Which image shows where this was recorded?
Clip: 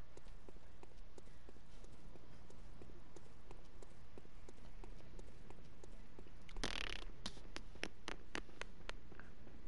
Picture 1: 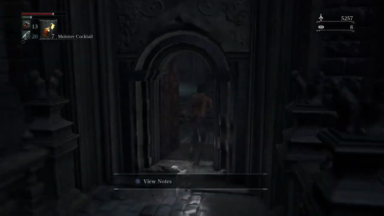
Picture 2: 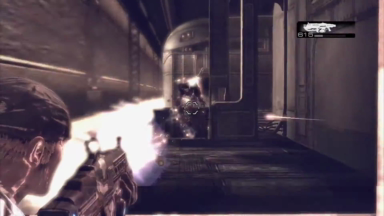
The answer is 1